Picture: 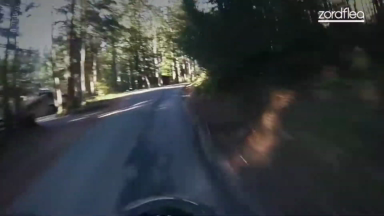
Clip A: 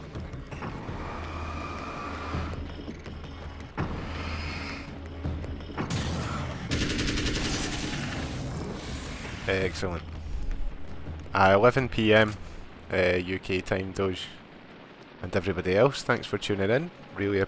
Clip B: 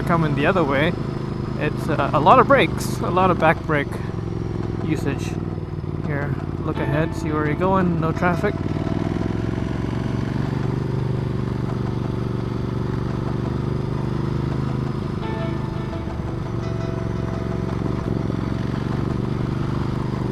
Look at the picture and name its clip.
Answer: B